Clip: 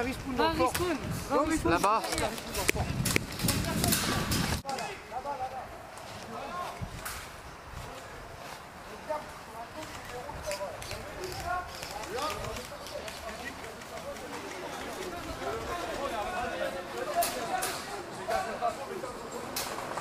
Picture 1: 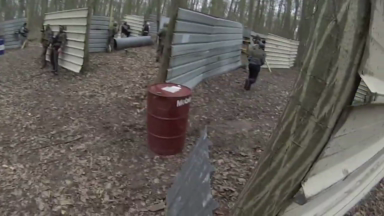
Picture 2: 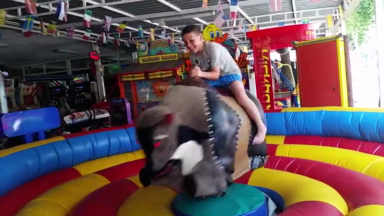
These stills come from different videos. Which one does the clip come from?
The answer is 1